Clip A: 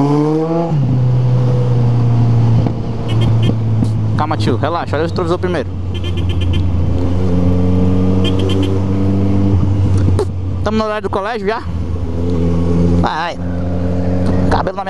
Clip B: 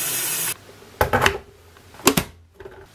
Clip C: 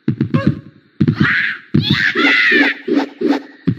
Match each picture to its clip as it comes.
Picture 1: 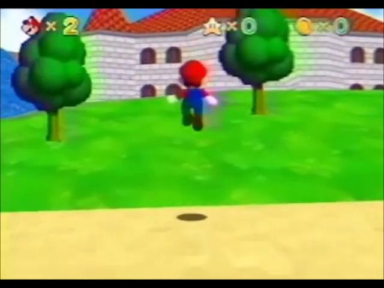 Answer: C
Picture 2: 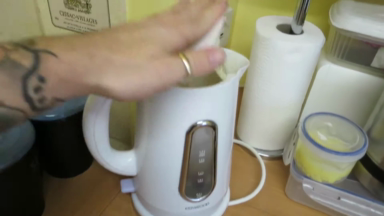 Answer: B